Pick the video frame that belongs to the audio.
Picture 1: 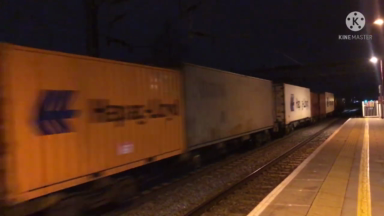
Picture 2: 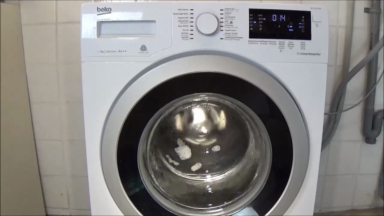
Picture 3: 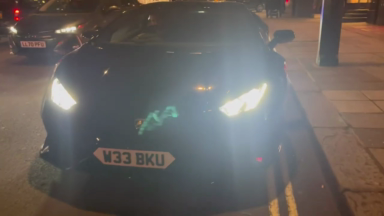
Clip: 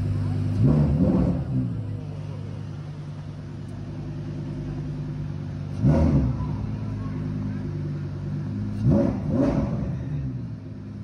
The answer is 3